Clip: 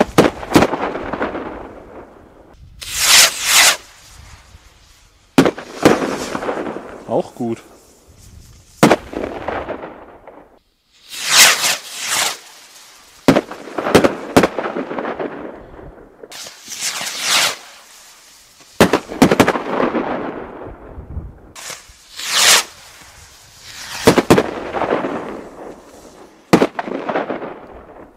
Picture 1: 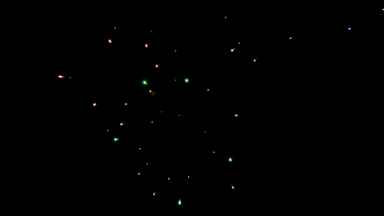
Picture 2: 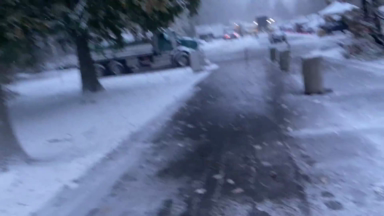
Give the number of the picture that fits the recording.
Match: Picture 1